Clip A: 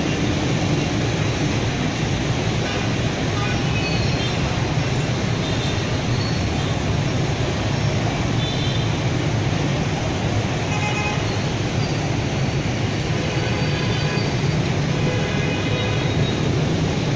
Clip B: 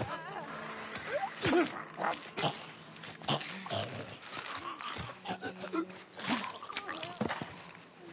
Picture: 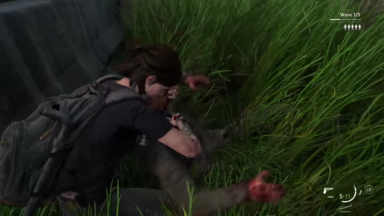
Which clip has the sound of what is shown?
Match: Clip B